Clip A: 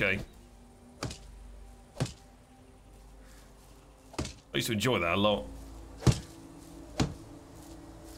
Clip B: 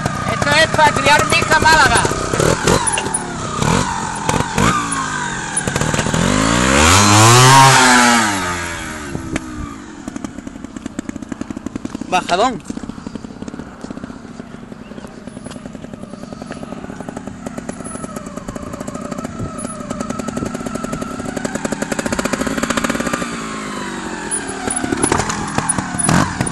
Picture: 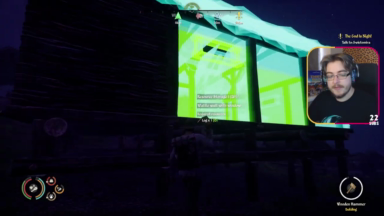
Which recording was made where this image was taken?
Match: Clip A